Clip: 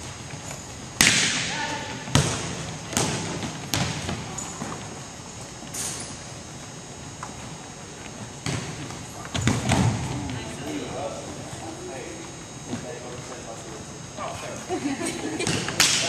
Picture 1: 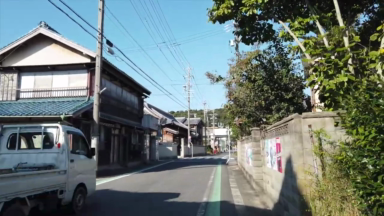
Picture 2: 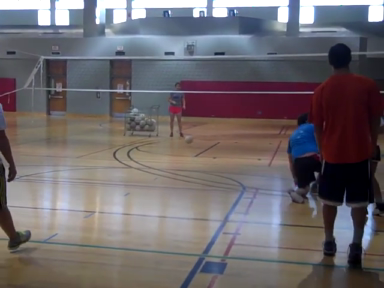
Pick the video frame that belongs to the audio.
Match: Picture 2